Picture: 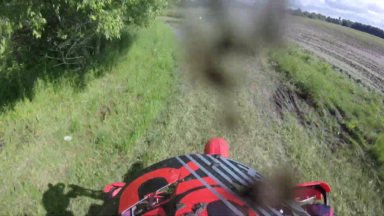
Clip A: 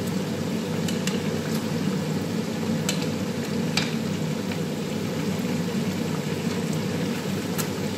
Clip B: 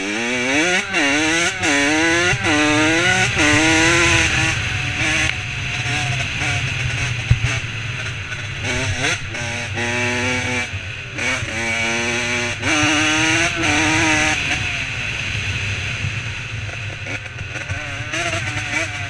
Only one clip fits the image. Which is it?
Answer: B